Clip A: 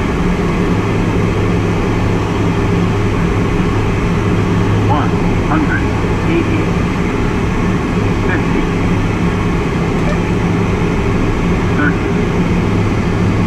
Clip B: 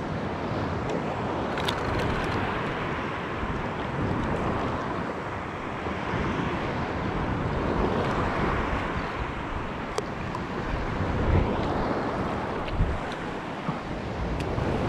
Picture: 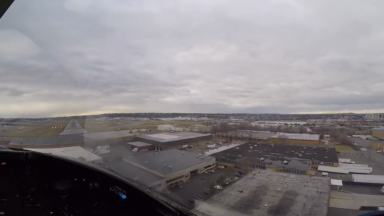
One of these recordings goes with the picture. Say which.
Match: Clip A